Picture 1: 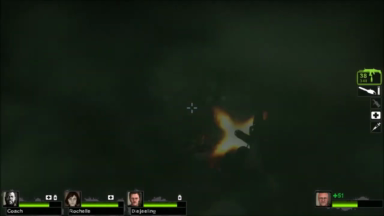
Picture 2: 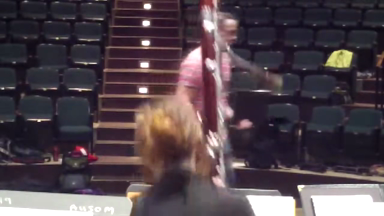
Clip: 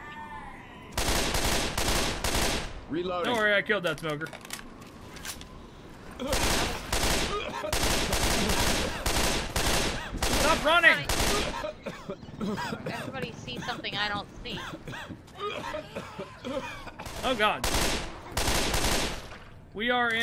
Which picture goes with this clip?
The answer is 1